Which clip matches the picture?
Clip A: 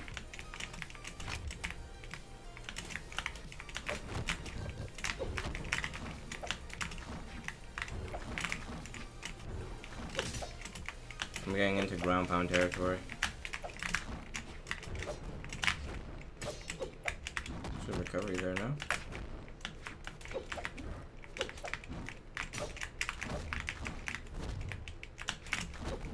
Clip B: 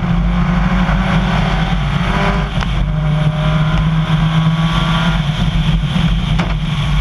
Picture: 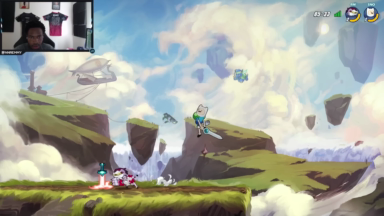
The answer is A